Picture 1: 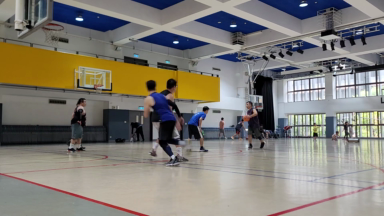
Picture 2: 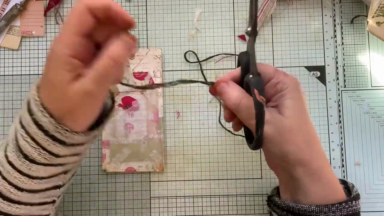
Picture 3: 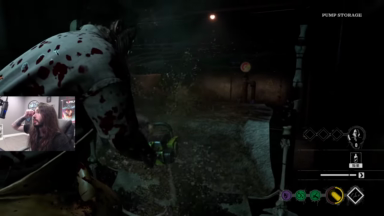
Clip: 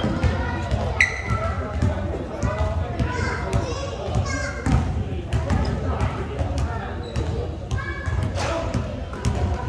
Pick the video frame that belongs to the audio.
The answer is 1